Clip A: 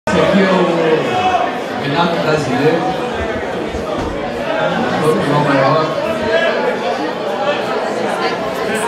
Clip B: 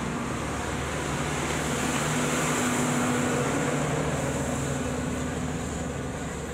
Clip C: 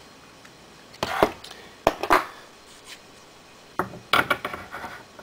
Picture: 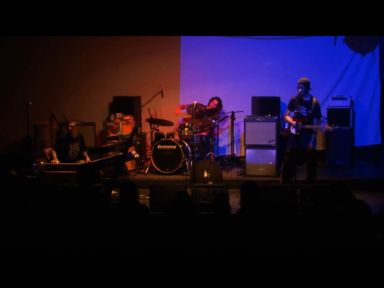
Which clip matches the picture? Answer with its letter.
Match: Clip A